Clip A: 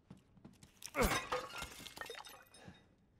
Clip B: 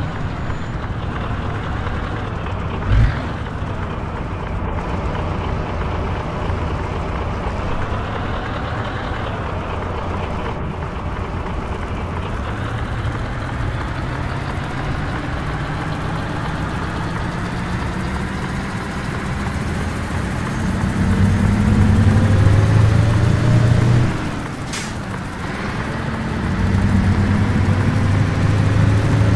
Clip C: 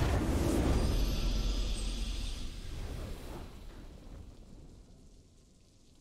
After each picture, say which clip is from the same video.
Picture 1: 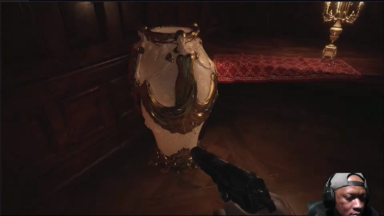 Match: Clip A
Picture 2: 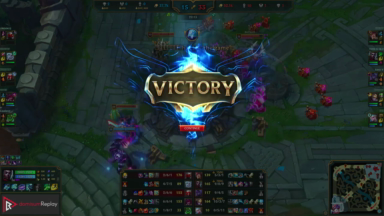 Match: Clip C